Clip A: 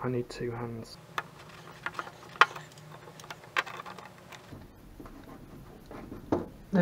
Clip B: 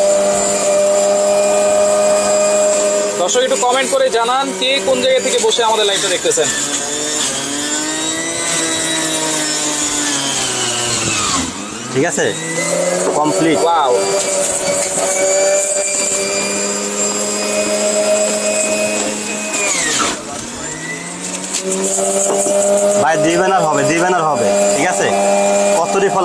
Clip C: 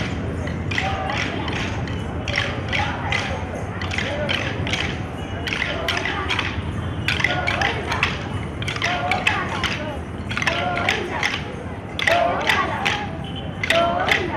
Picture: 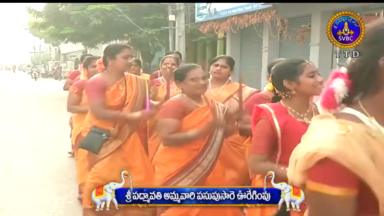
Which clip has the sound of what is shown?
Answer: C